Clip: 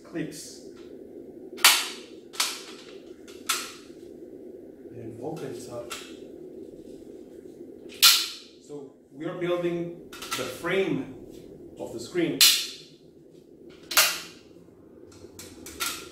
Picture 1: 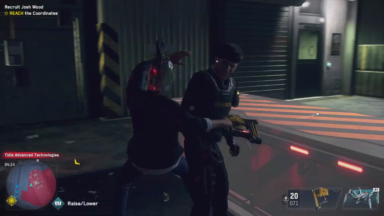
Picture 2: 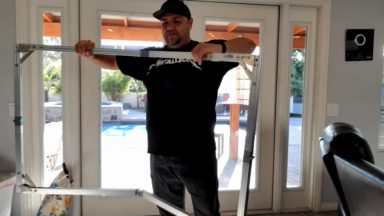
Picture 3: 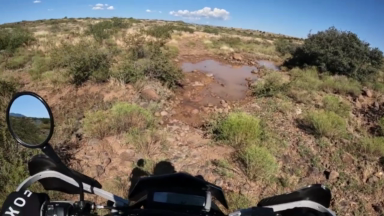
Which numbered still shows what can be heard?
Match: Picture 2